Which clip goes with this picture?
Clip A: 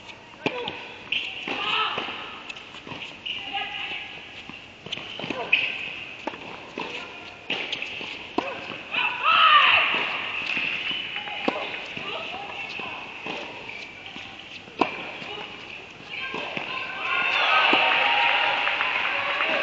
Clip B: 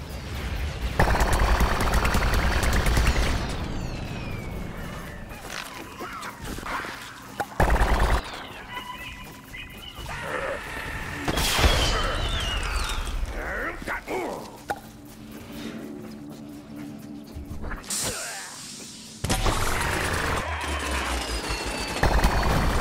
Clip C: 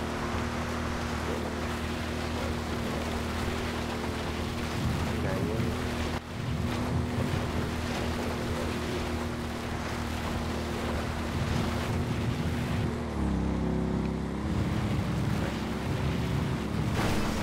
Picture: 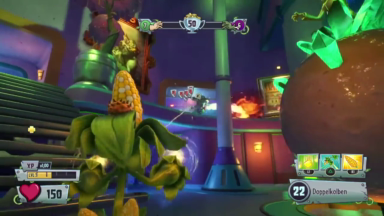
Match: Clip B